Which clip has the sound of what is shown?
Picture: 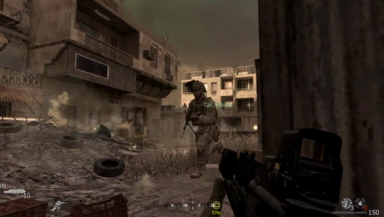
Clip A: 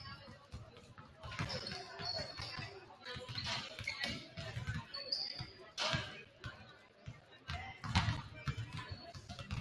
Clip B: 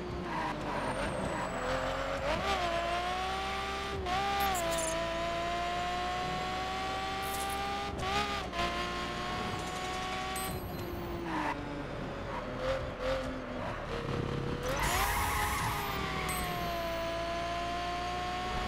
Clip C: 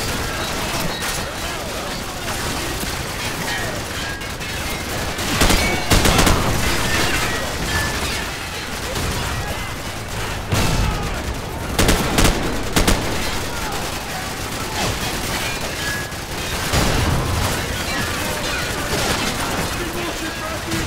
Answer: C